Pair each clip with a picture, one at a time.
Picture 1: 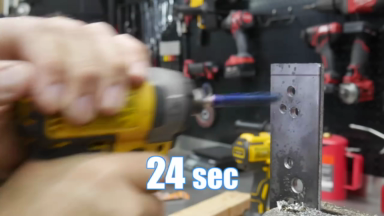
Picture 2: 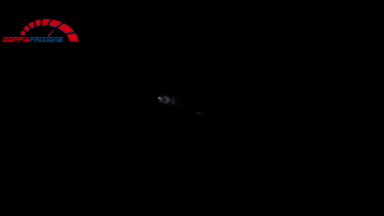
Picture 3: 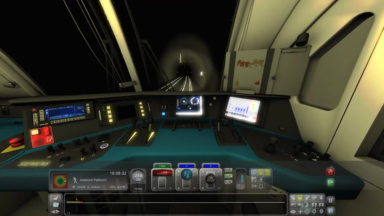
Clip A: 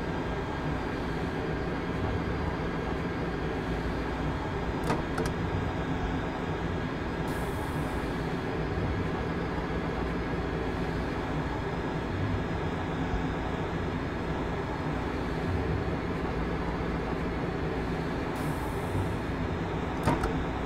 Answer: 3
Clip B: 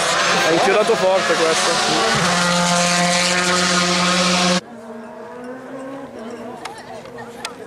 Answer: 2